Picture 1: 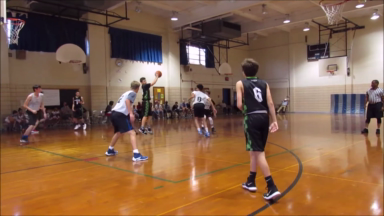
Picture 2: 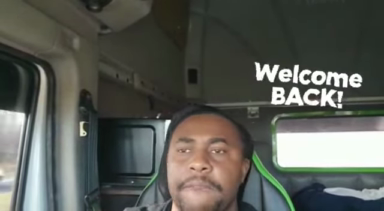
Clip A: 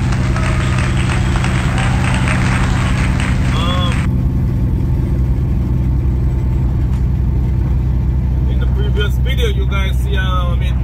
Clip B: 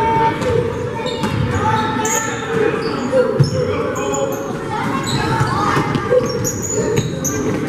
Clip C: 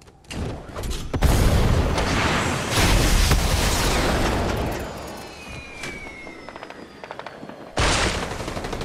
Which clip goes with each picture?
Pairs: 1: B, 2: A